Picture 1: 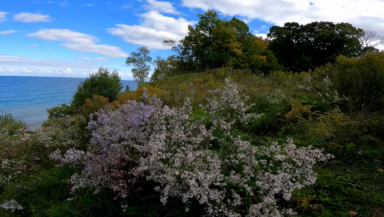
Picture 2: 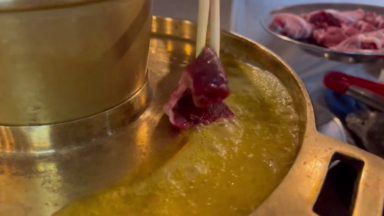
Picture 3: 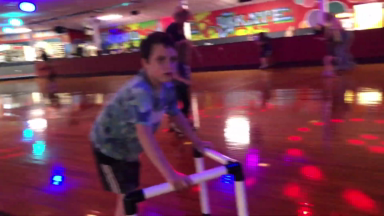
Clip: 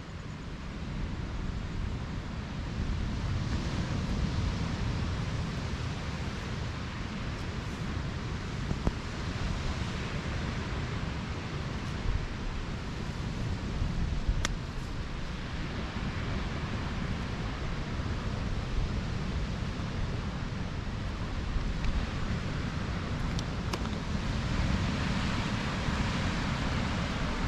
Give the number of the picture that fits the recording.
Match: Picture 1